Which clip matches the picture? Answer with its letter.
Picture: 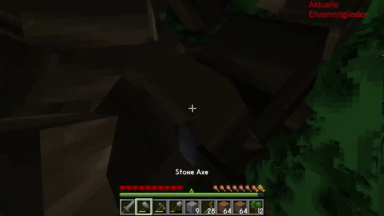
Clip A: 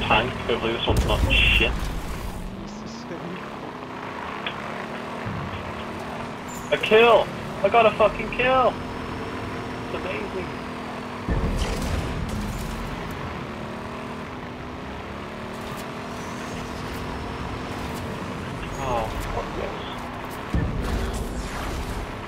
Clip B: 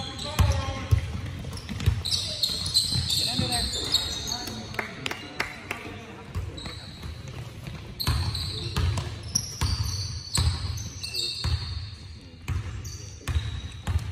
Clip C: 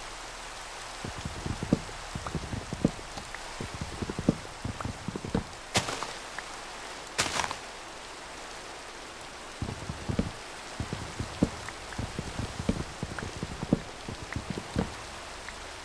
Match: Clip C